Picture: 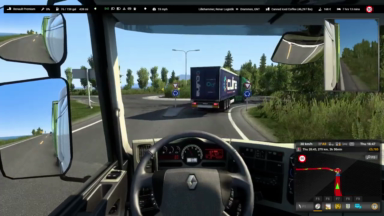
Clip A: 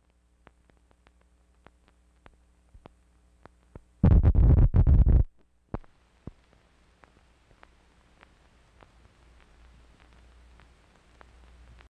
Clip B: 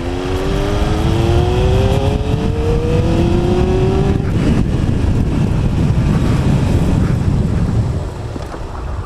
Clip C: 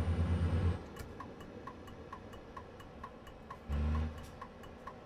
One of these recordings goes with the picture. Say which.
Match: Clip C